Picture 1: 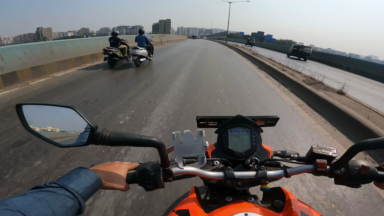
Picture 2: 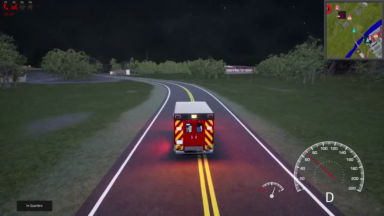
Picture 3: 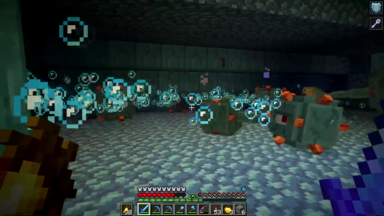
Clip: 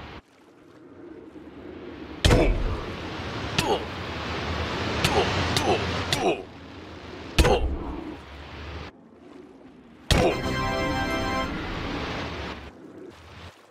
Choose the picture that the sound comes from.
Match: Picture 3